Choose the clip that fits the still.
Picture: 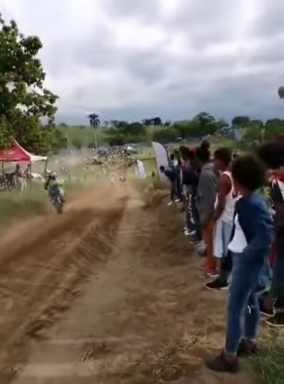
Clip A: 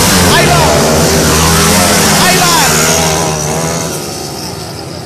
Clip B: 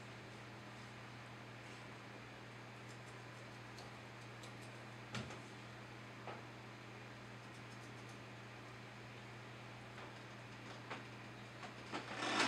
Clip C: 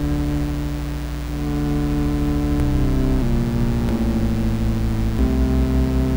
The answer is A